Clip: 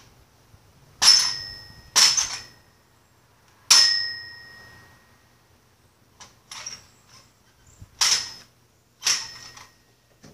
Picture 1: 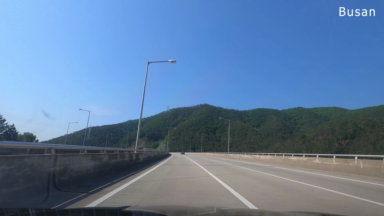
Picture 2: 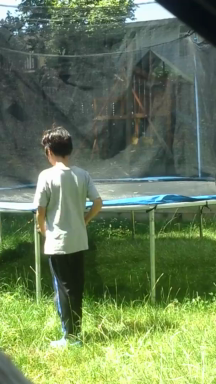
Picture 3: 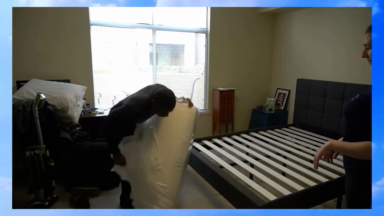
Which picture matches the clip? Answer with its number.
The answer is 2